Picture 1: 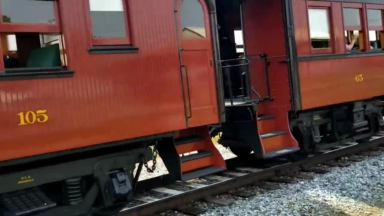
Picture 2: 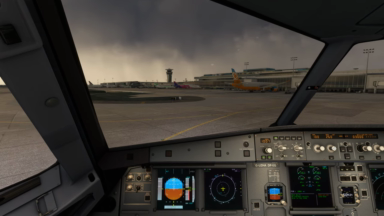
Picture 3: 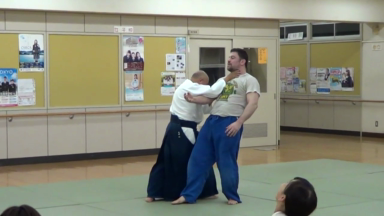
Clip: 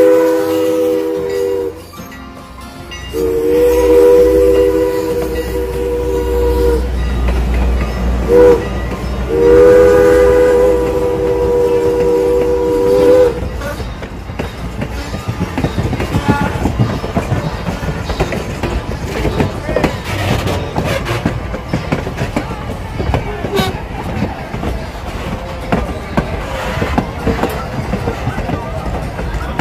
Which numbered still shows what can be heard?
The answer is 1